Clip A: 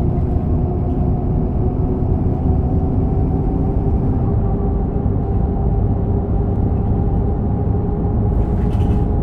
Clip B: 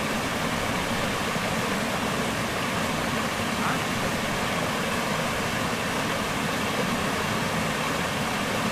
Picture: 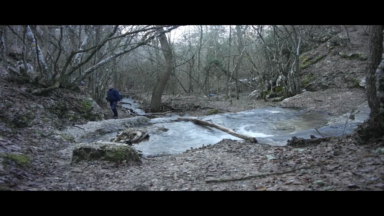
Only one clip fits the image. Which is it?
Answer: B